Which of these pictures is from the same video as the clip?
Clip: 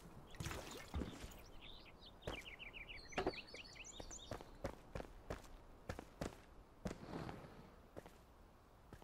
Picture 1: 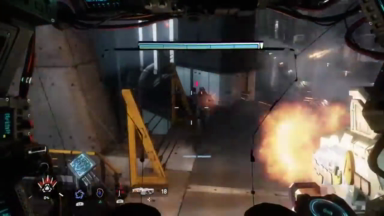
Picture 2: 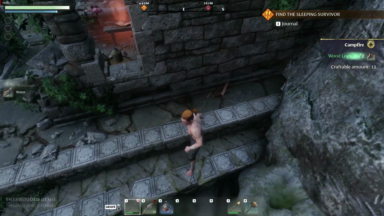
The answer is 2